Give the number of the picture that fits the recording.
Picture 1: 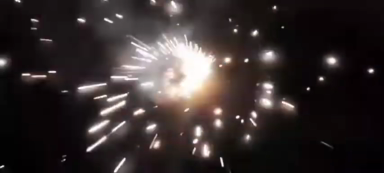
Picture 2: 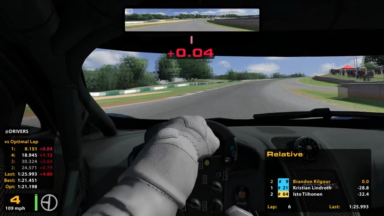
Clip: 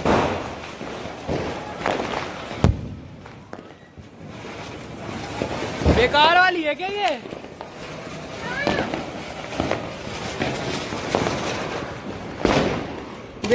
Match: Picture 1